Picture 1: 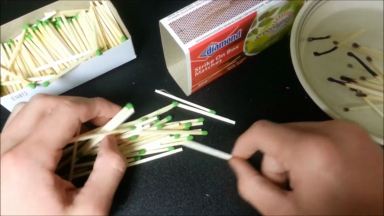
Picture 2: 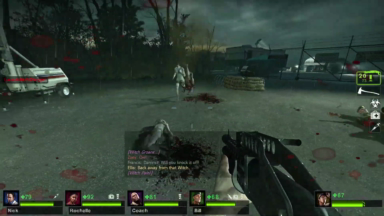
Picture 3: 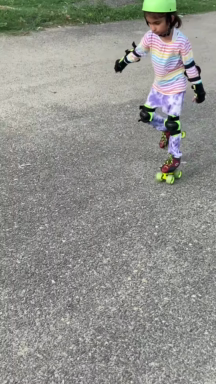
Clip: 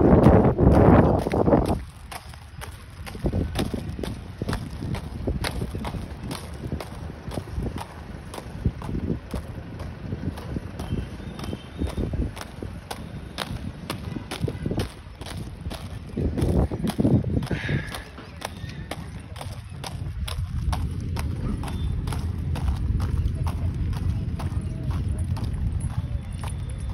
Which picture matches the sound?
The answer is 3